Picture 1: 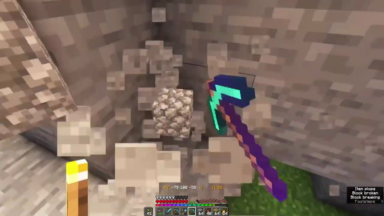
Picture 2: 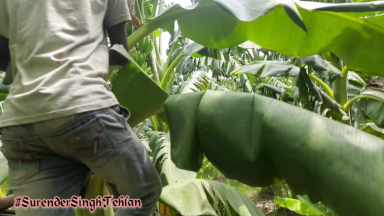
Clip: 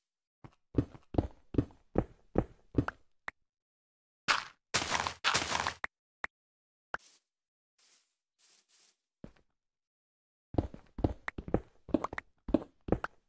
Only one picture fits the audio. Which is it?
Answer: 1